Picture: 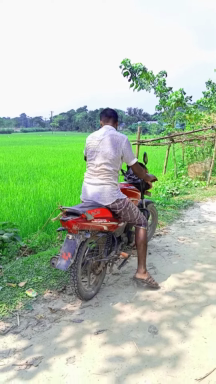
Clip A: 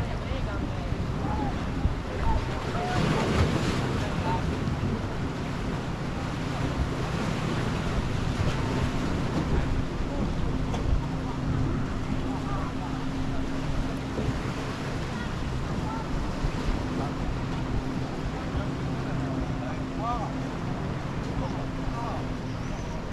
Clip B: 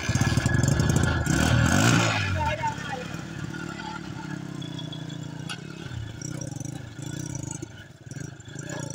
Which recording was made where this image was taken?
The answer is B